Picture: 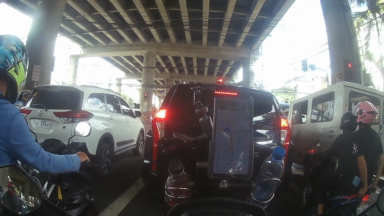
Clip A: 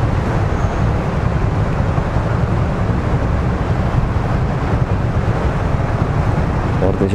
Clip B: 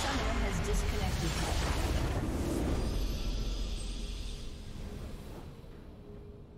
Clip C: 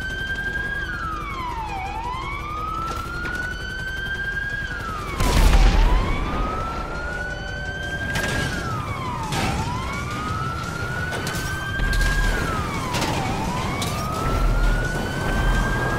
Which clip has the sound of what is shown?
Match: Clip A